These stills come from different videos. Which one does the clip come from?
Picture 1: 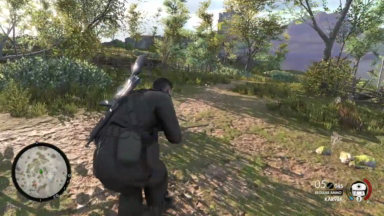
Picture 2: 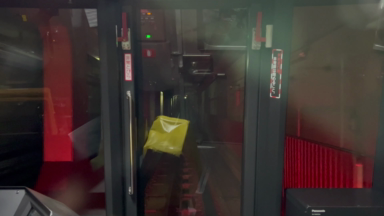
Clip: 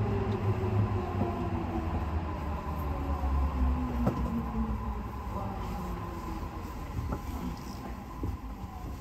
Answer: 2